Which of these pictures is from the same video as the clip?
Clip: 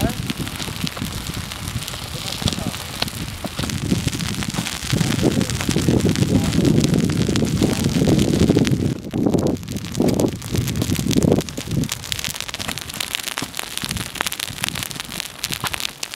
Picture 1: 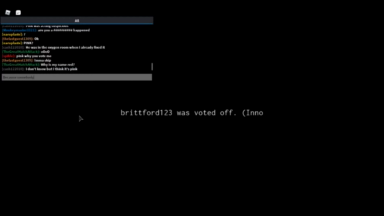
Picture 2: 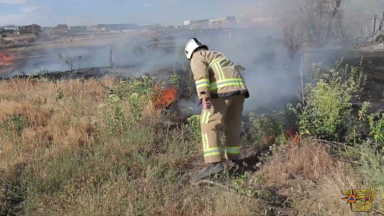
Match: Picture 2